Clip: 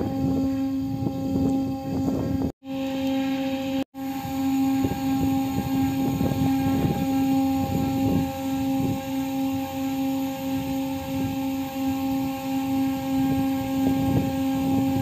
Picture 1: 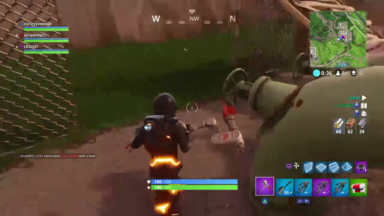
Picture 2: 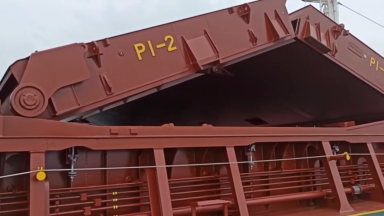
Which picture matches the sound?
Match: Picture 2